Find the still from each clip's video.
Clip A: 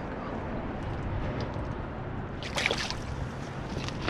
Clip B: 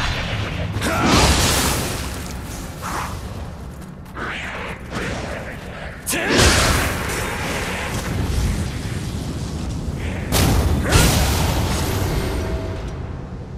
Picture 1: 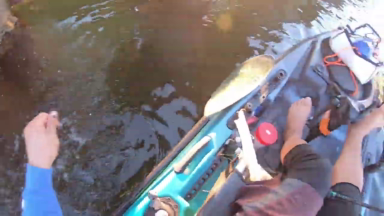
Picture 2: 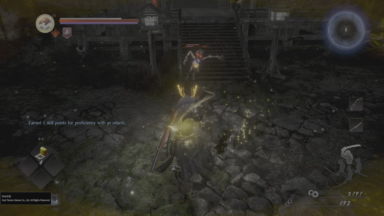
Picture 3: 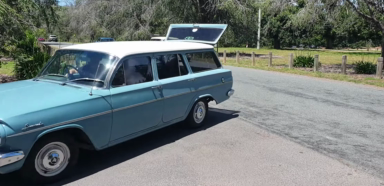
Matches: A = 1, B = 2